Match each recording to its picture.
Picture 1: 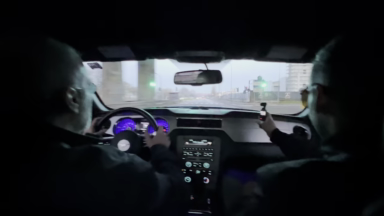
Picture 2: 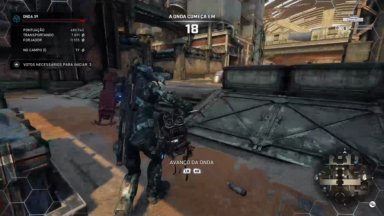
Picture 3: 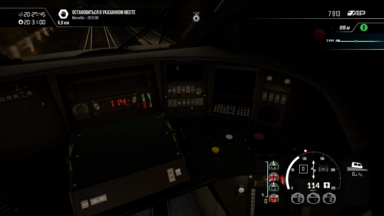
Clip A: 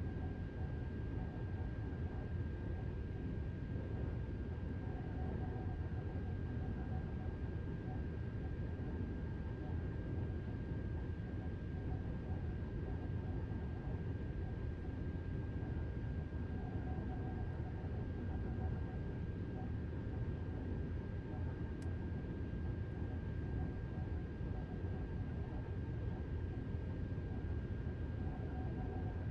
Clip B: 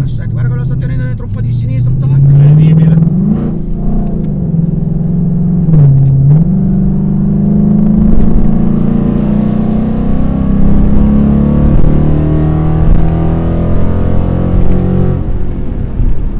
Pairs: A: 3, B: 1